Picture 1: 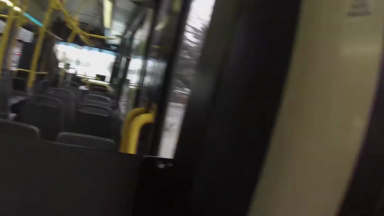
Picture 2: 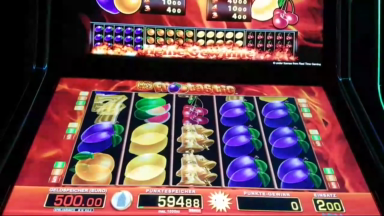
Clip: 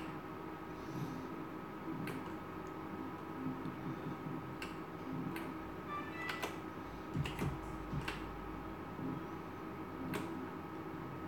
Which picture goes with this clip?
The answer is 2